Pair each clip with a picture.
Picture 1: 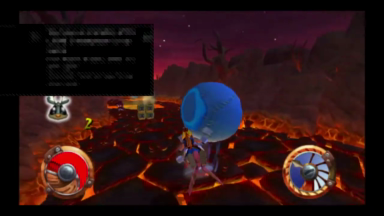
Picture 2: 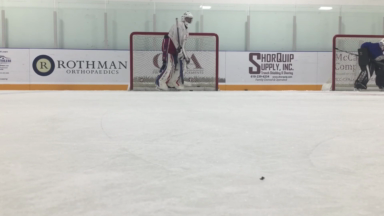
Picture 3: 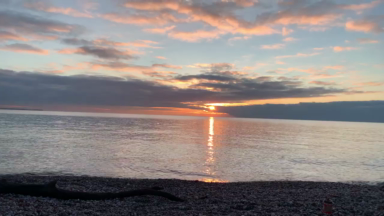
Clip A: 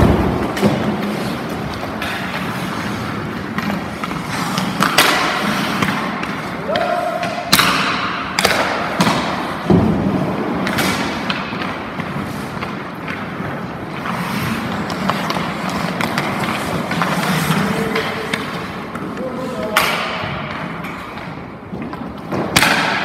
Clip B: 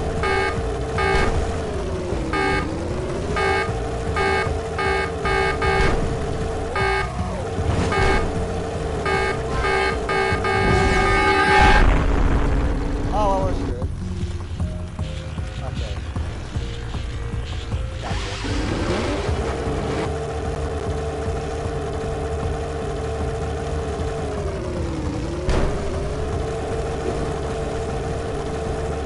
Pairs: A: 2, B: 1